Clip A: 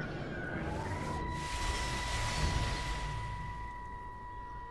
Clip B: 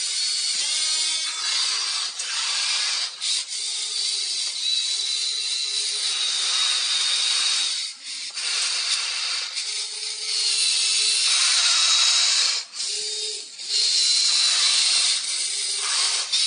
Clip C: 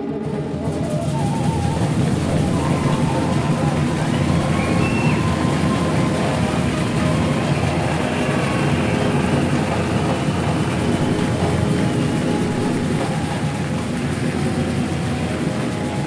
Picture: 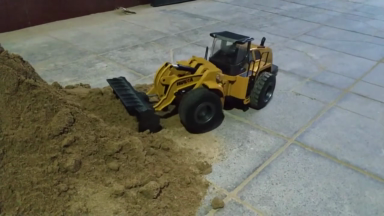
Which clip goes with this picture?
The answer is B